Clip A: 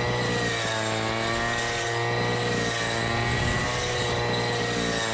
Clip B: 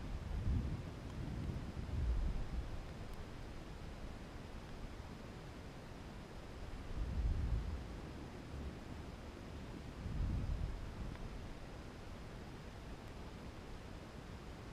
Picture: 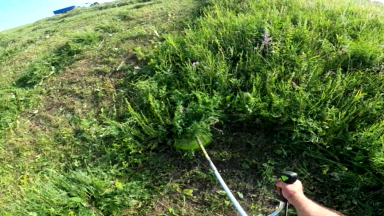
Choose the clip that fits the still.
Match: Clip A